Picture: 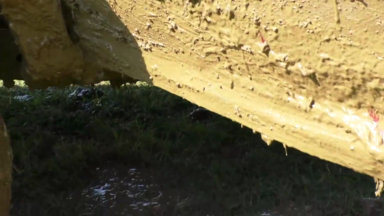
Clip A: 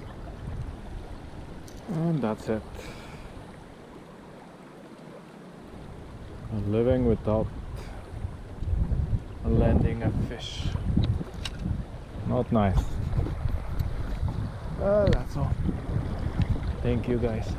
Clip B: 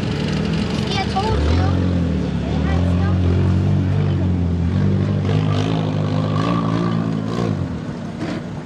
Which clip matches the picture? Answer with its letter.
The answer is B